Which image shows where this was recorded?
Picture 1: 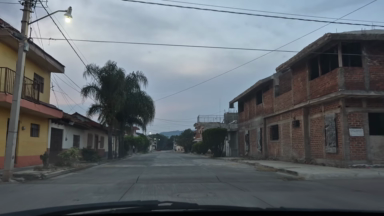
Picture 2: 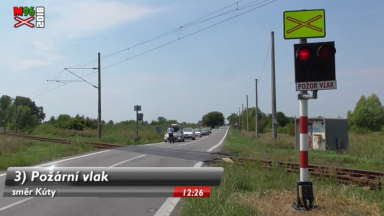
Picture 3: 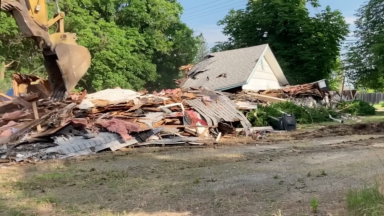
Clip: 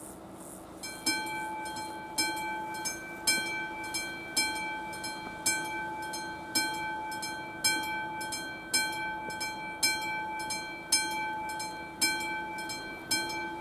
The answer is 2